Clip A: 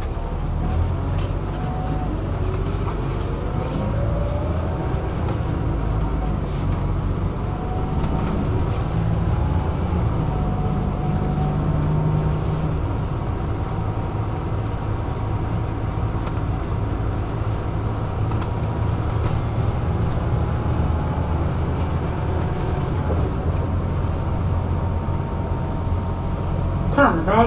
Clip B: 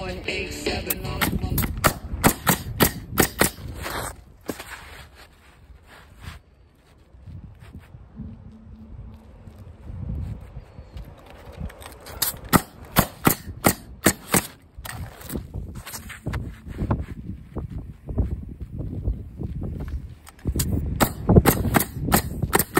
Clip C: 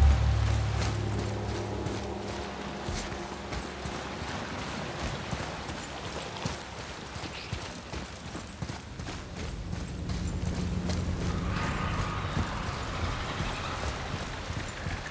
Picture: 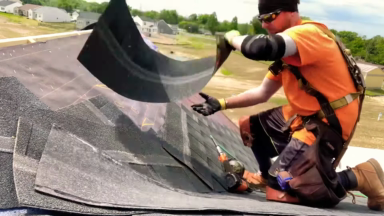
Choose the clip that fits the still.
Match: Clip B